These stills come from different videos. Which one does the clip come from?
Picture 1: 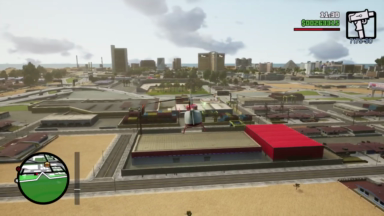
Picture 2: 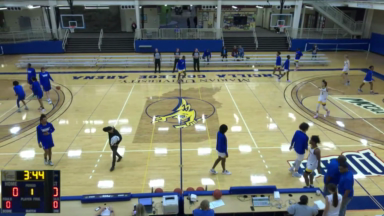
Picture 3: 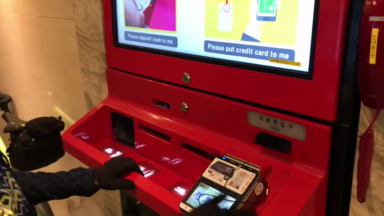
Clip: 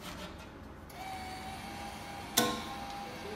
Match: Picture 3